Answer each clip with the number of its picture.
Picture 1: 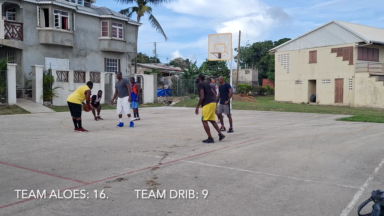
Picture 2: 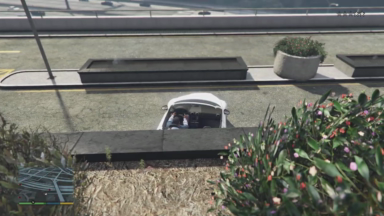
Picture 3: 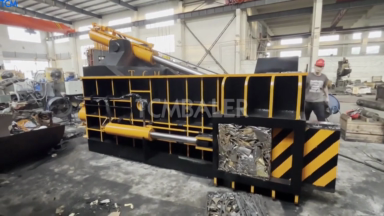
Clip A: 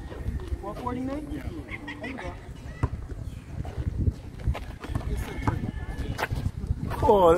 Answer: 1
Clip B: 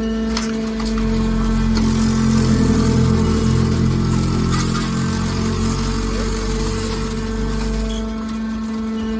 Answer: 3